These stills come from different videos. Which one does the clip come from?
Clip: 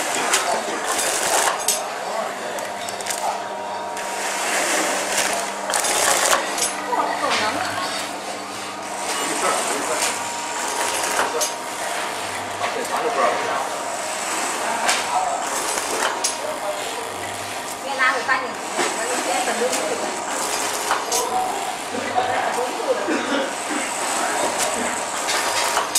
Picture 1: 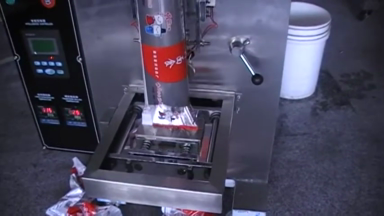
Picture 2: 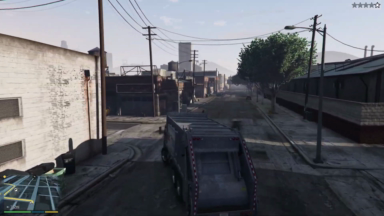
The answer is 1